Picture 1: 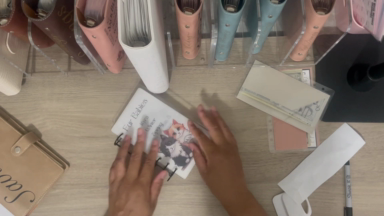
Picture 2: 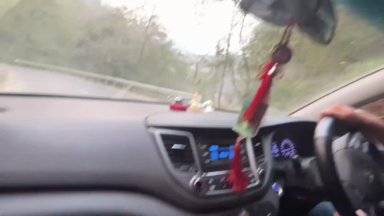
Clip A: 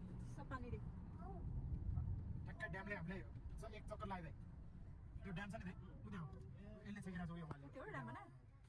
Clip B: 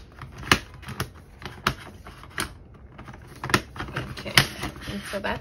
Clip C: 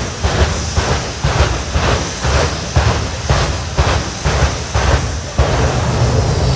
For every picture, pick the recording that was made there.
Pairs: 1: B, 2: A